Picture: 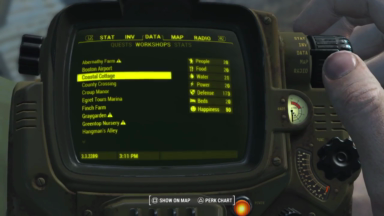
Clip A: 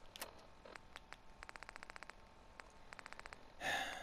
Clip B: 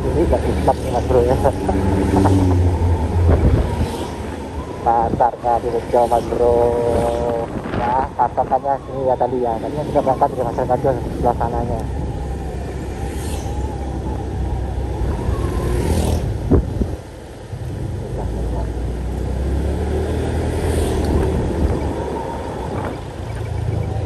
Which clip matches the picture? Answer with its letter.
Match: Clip A